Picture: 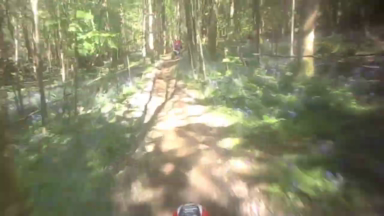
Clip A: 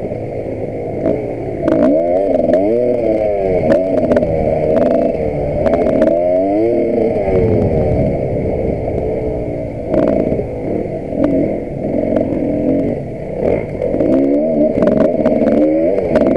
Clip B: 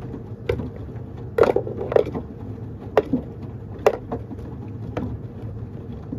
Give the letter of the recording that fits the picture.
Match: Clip A